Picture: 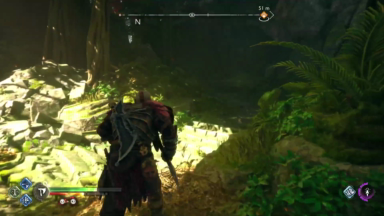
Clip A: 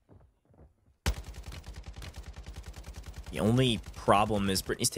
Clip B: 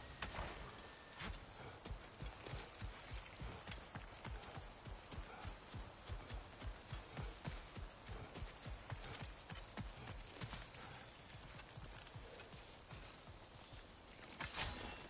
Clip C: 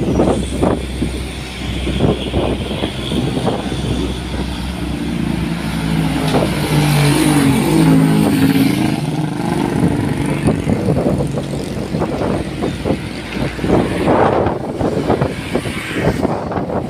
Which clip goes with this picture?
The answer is B